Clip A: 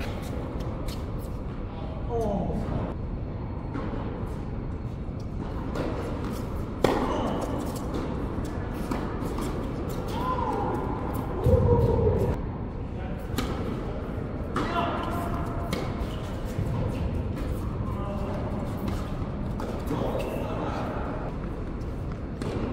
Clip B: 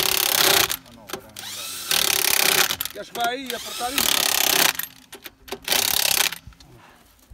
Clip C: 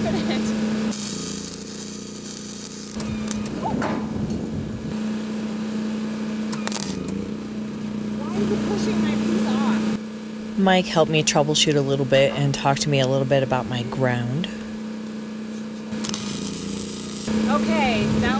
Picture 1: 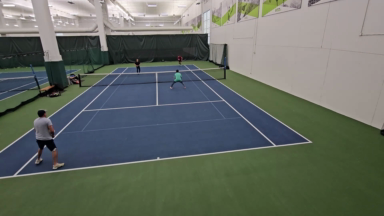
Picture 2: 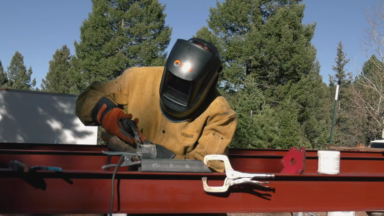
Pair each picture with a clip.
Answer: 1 A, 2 C